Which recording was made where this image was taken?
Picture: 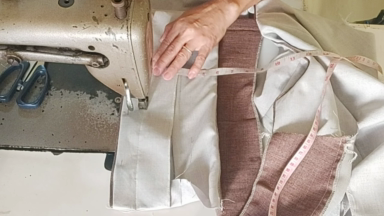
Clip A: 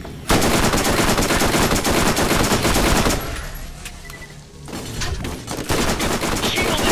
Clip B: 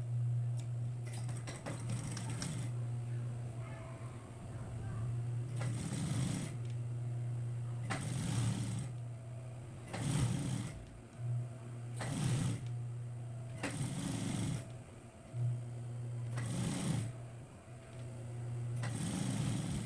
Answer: B